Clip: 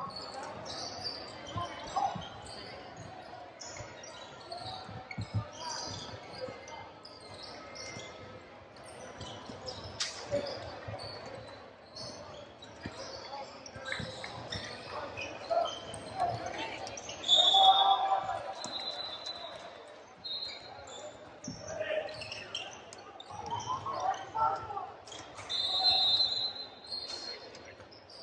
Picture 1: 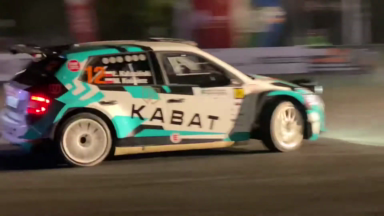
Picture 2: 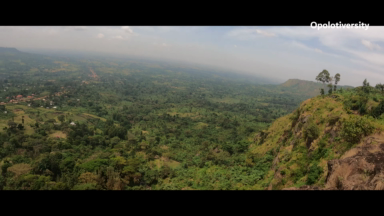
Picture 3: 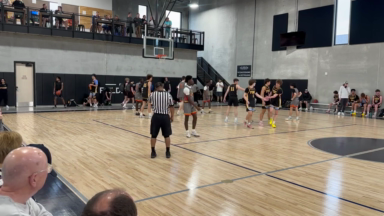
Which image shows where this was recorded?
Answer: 3